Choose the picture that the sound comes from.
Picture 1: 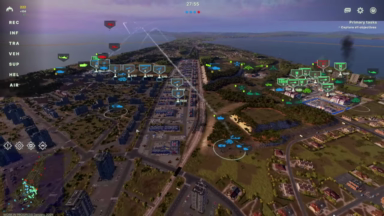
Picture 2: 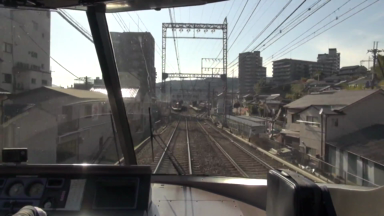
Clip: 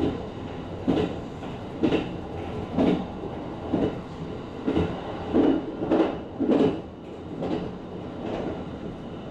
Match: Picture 2